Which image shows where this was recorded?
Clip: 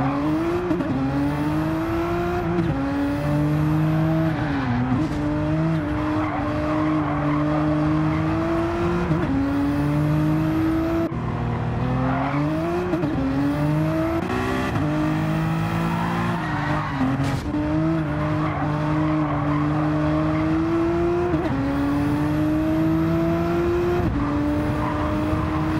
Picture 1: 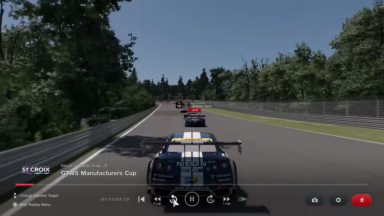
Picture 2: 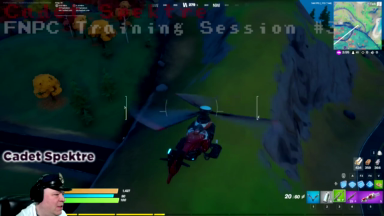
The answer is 1